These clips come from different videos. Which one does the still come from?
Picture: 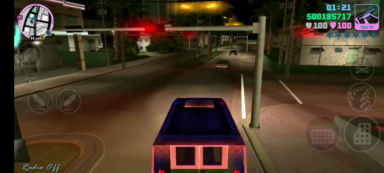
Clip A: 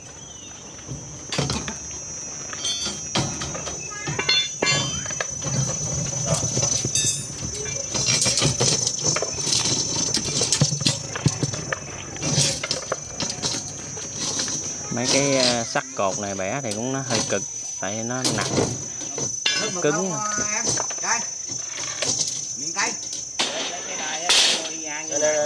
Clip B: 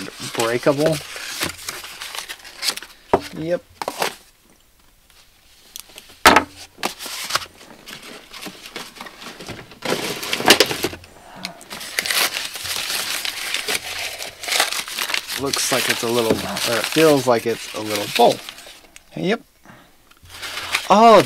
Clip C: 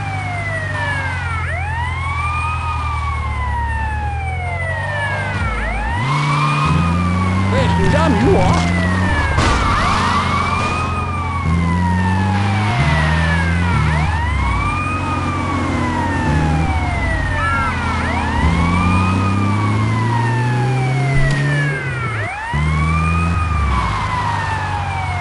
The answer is C